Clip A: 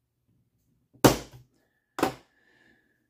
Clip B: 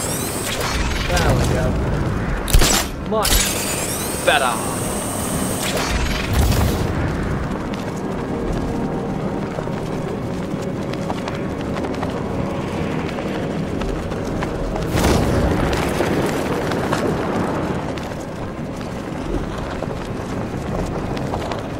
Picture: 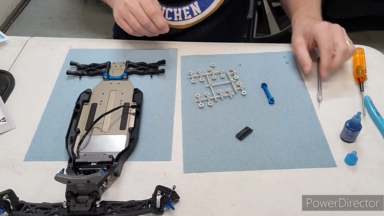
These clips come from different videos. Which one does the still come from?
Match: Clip A